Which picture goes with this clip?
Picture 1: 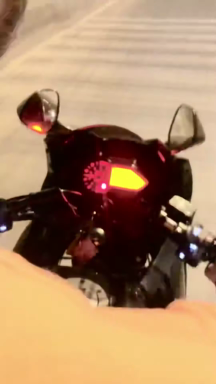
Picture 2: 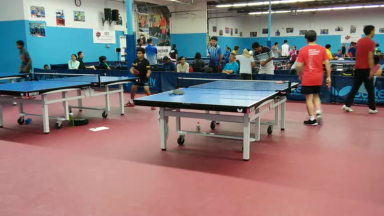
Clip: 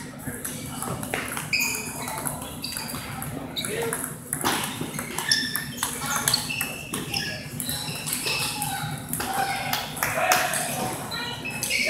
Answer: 2